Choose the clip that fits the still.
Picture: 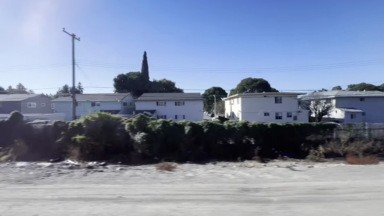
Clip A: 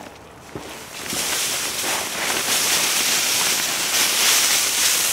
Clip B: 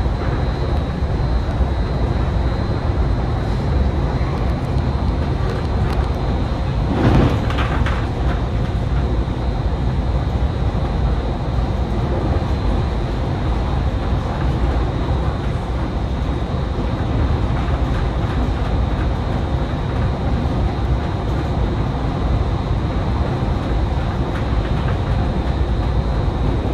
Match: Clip B